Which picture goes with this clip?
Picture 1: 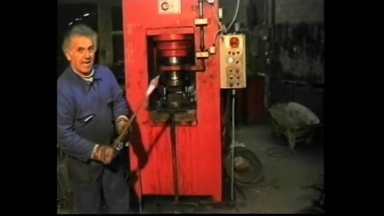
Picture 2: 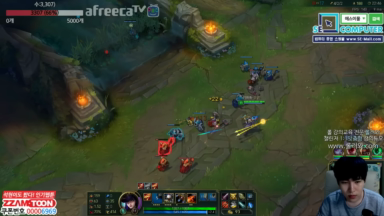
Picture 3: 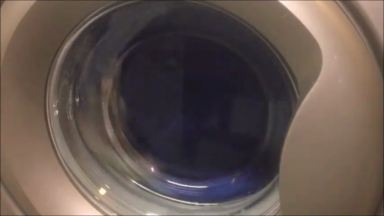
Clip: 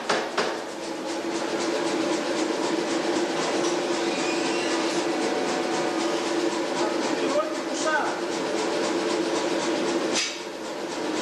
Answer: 1